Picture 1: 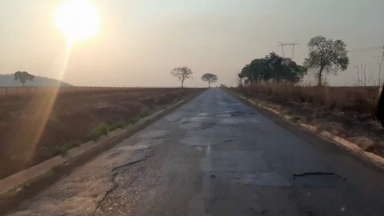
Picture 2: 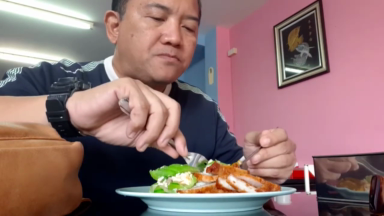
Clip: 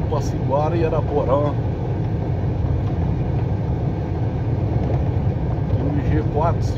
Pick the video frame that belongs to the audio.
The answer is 1